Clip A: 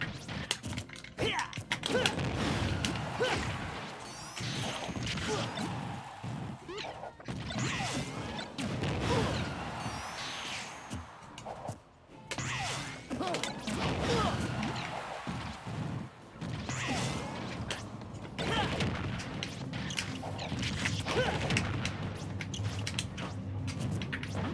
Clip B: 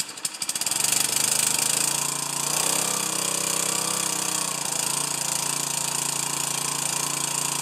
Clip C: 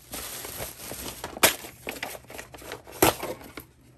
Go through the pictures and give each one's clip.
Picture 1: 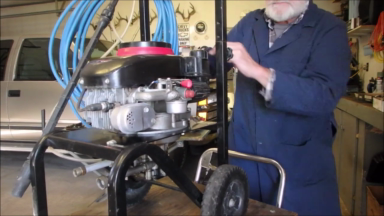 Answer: B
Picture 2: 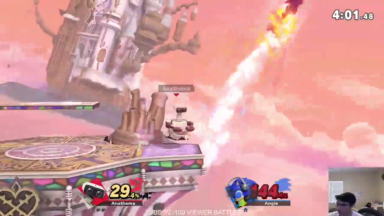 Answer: A